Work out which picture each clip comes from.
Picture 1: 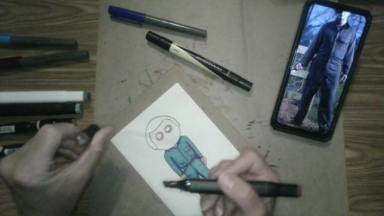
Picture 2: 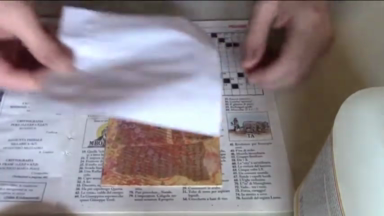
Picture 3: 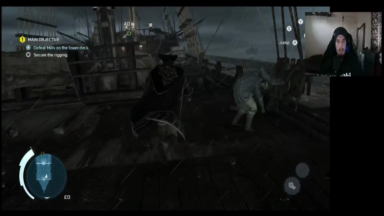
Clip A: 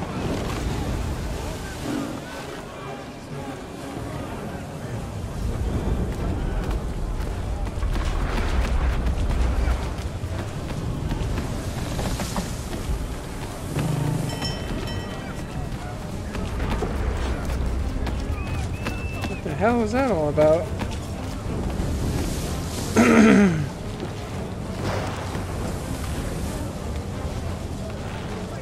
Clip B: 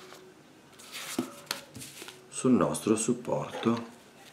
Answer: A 3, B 2